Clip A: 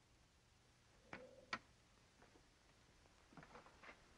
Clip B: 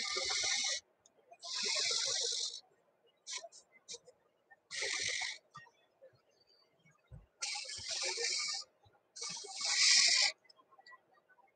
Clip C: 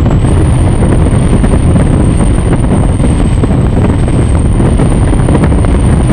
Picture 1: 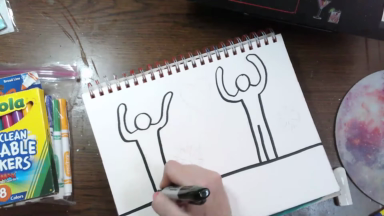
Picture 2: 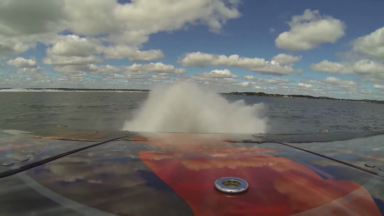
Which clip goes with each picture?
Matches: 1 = B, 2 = C